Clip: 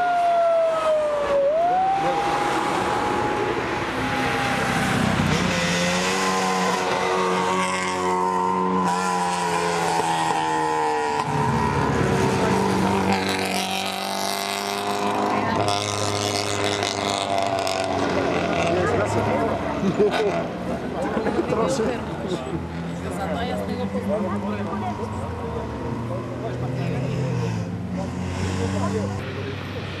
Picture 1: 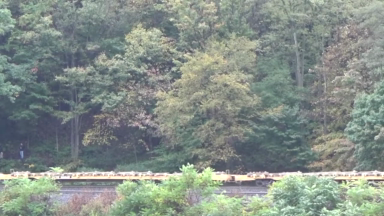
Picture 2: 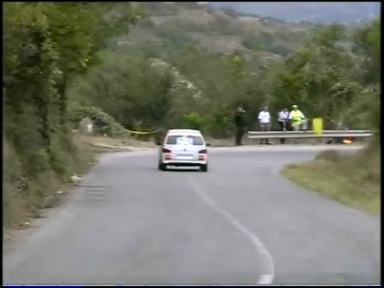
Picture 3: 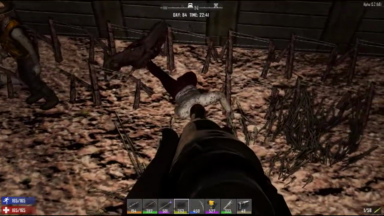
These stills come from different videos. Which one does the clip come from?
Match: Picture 2